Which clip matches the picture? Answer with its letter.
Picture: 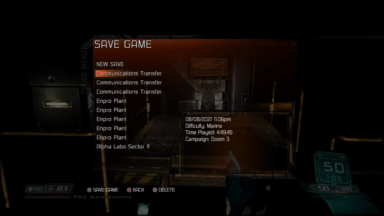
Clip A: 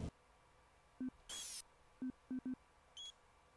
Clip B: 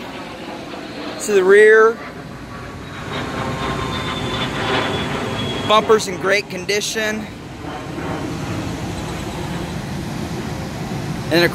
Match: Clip A